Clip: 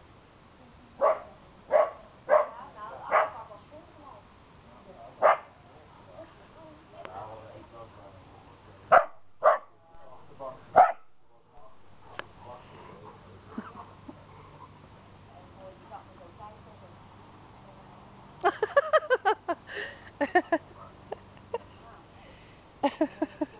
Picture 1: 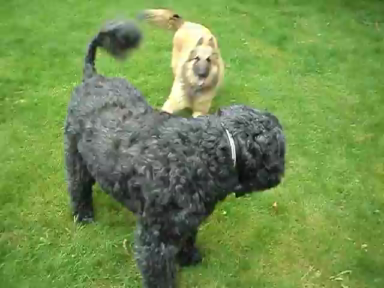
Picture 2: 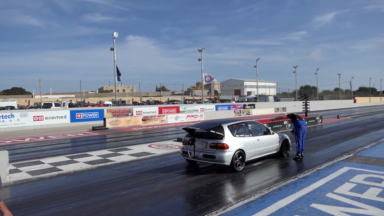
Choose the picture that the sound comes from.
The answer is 1